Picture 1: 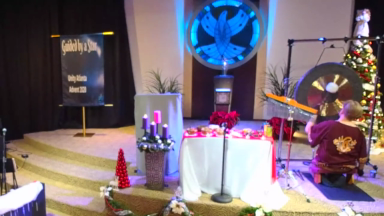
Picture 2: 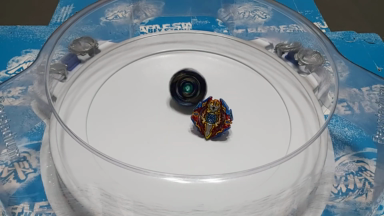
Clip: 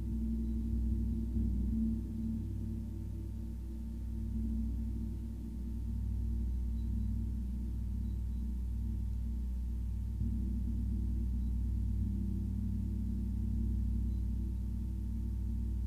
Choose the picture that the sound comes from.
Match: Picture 1